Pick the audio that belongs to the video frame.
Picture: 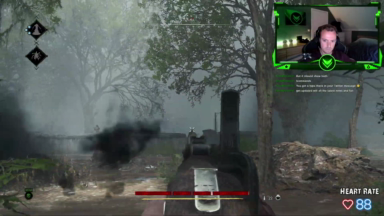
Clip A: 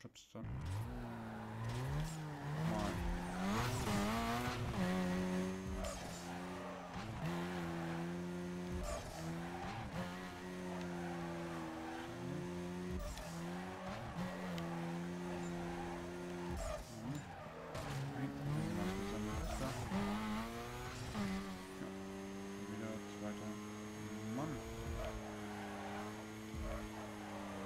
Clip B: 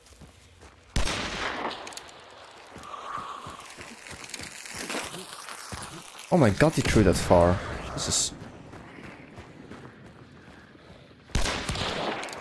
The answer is B